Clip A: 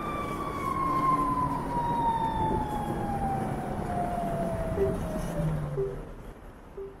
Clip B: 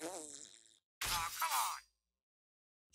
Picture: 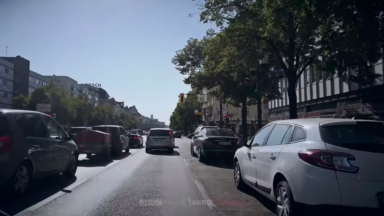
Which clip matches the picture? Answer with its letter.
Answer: A